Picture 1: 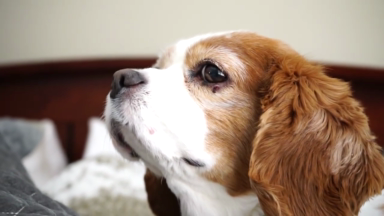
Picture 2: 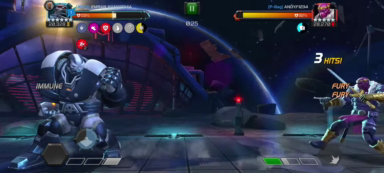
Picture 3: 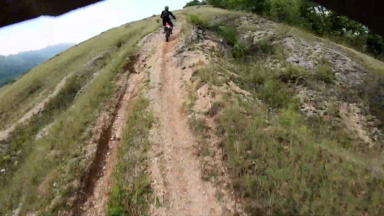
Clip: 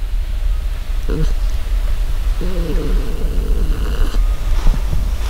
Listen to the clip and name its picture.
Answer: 1